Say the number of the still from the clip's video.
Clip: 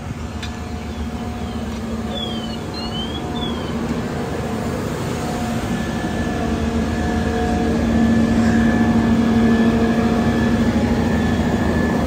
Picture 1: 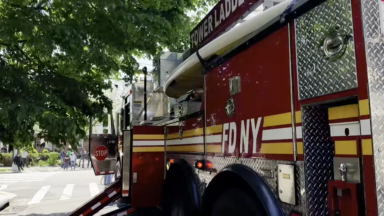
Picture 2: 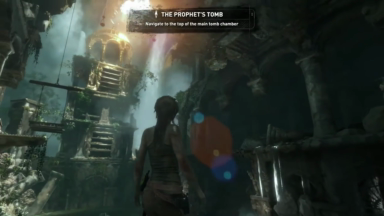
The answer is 1